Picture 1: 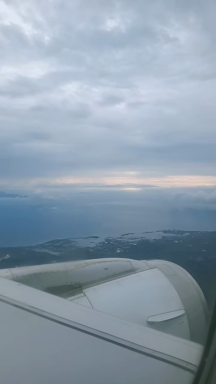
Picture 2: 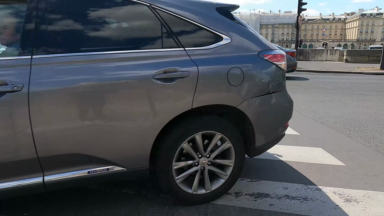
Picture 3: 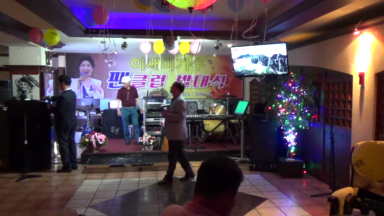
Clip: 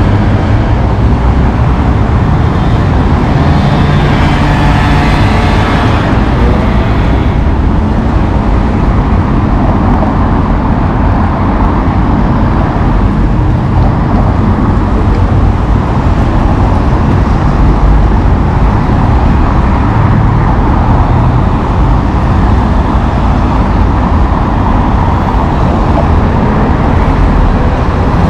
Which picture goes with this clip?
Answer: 2